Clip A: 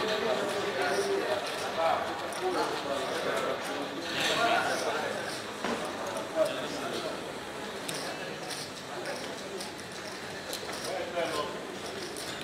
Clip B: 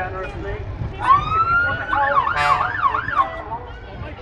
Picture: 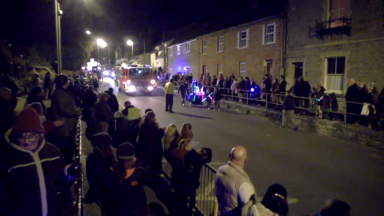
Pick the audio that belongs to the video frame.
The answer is B